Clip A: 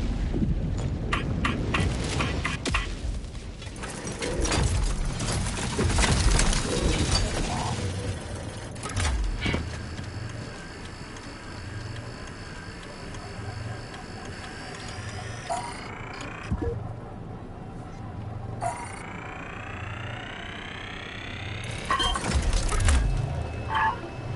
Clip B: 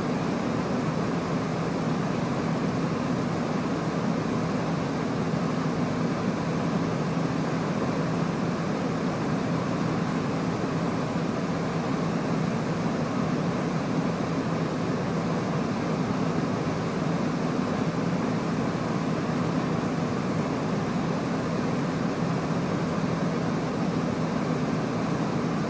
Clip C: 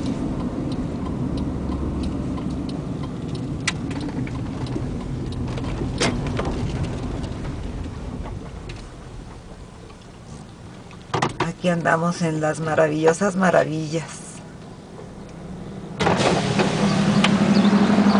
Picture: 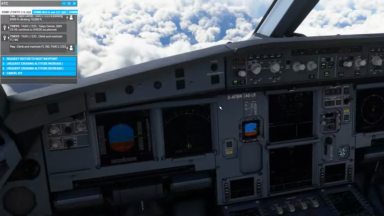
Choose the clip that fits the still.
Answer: B